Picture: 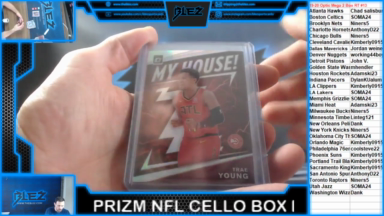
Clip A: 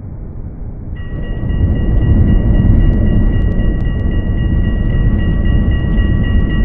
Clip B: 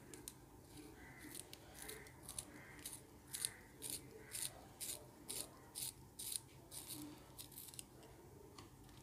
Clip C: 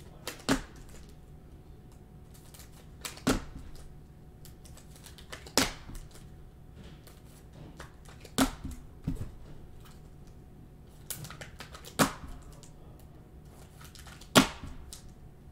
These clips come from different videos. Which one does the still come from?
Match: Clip C